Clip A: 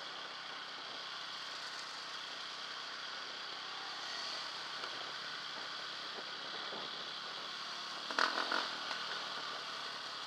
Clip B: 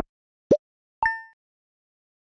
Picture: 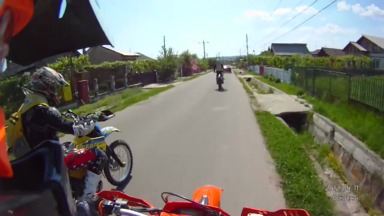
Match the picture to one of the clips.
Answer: A